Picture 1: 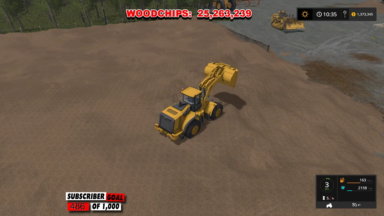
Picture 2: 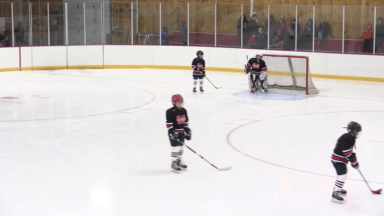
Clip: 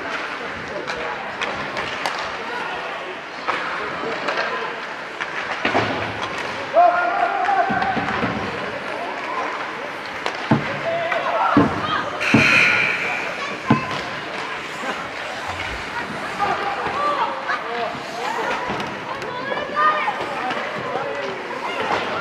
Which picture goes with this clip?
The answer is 2